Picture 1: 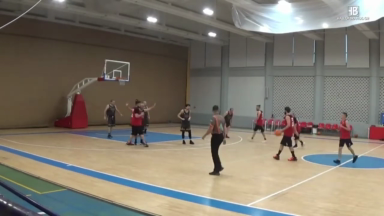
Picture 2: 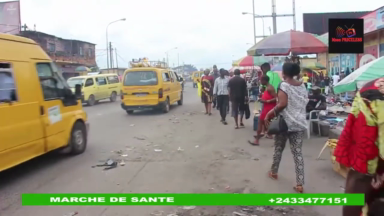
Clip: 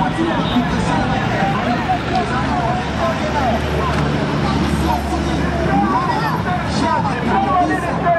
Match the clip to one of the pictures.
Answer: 2